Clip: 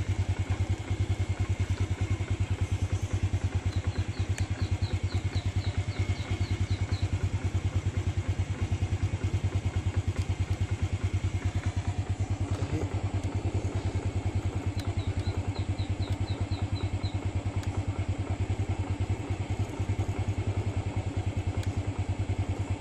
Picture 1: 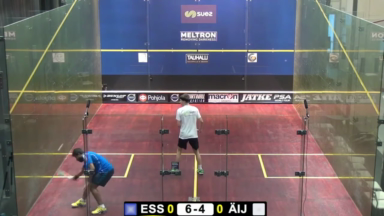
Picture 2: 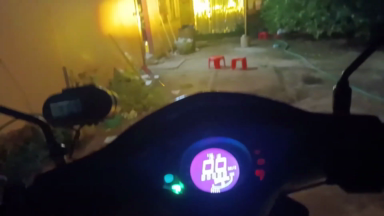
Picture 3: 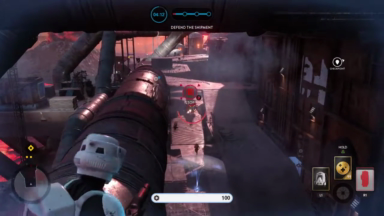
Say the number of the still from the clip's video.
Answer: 2